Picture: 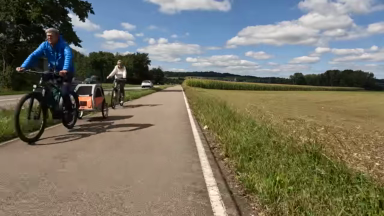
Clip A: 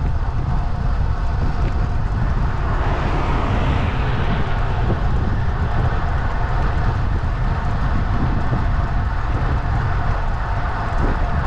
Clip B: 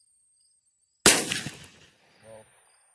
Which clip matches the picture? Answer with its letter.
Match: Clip A